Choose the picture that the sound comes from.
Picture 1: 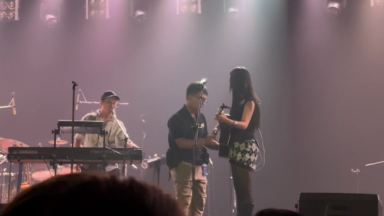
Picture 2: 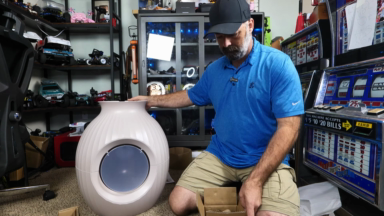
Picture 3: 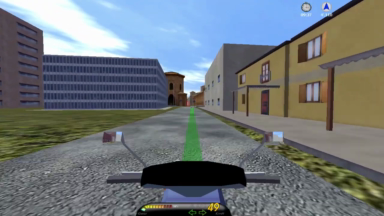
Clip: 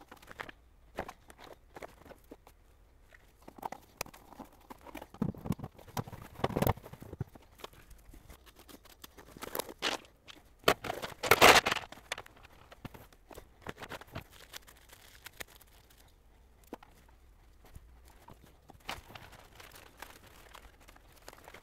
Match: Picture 2